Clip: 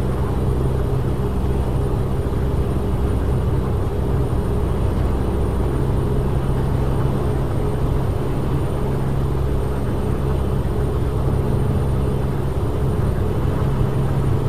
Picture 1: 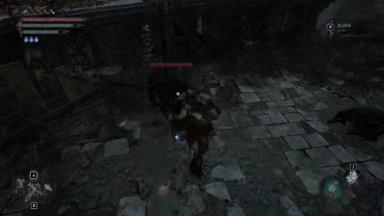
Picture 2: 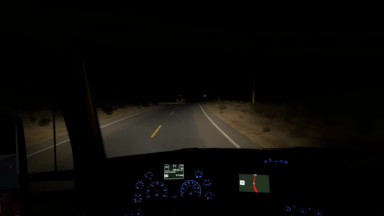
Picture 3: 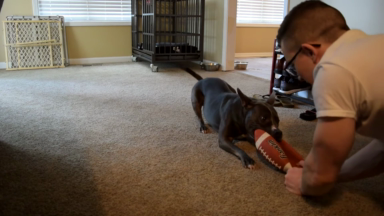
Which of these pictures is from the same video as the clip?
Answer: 2